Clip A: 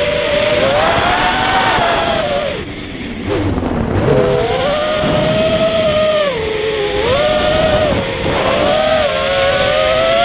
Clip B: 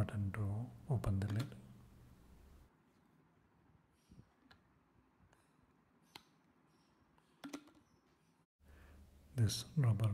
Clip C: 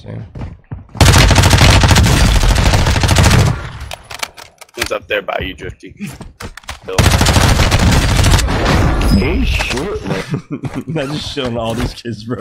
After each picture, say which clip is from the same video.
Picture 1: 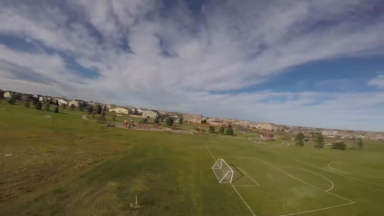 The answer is A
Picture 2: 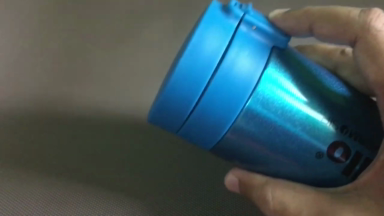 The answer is B